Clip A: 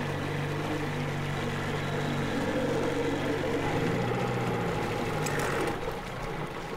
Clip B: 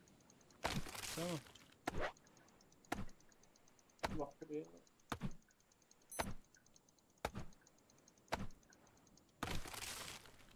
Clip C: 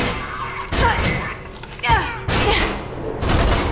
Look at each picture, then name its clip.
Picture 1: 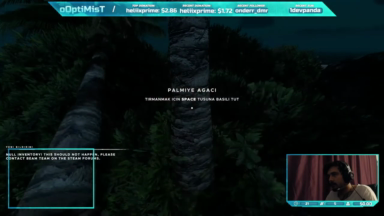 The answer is B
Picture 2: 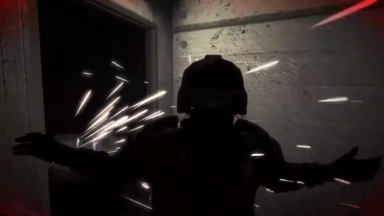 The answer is C